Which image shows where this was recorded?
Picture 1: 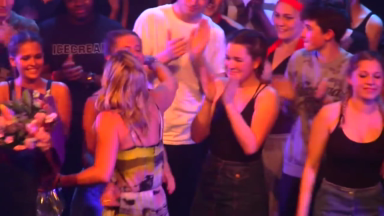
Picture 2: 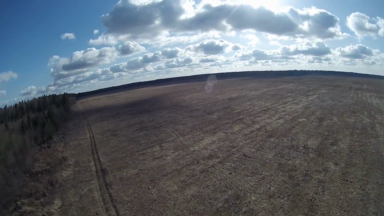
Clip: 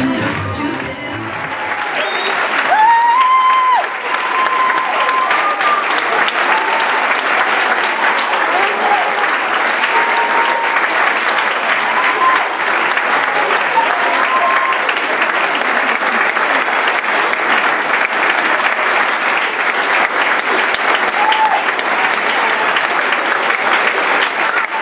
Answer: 1